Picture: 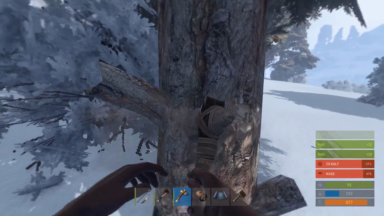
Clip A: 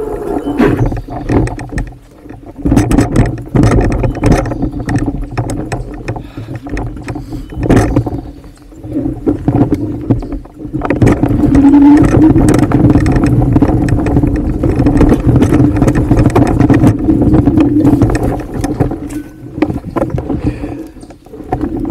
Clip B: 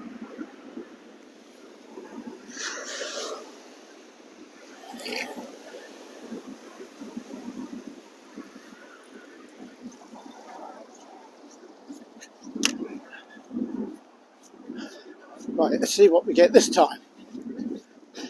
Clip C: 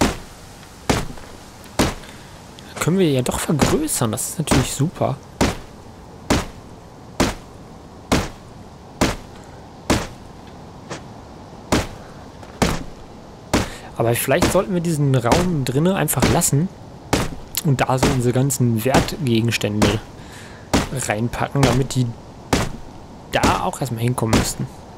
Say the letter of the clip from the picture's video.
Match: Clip C